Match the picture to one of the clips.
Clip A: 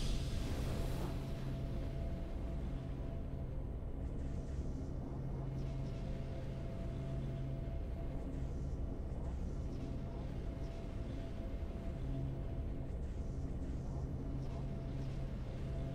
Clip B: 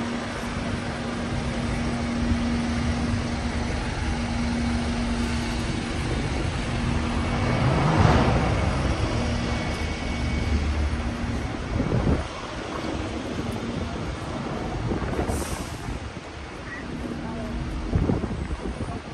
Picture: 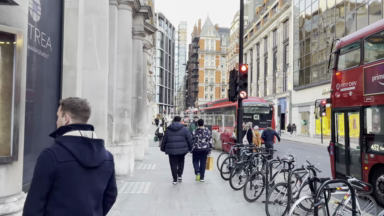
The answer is B